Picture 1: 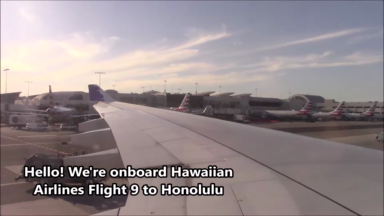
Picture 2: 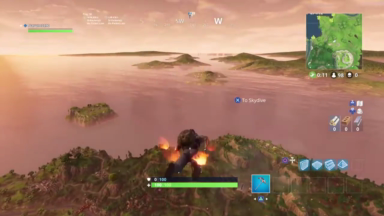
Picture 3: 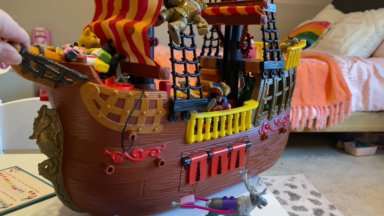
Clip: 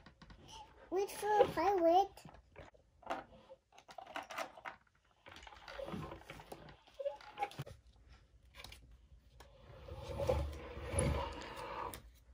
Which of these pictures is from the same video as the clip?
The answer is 3